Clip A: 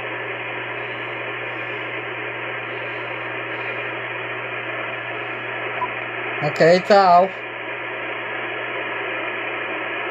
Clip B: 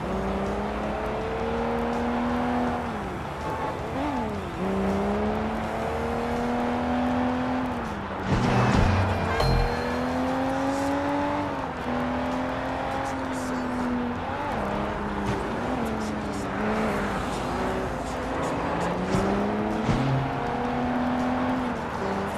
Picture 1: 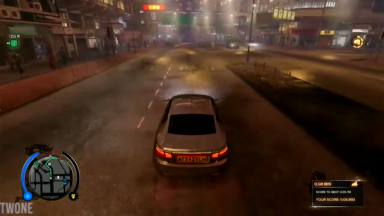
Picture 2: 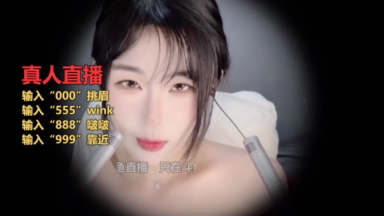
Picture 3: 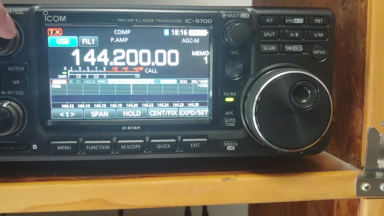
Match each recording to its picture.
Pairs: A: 3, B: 1